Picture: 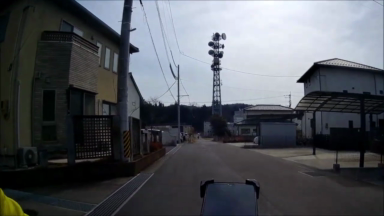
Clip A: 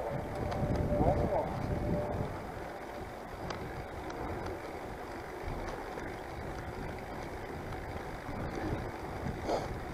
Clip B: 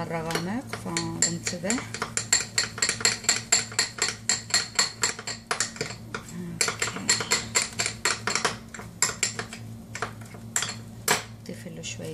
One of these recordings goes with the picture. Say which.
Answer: A